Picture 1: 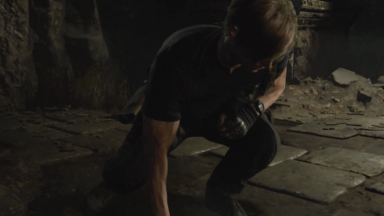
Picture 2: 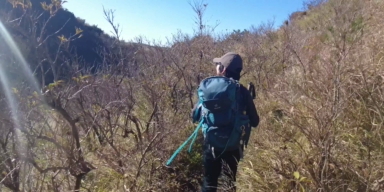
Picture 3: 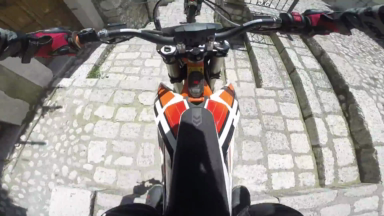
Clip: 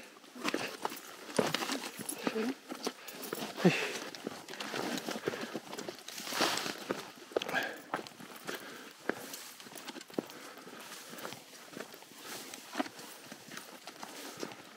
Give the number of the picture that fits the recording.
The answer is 2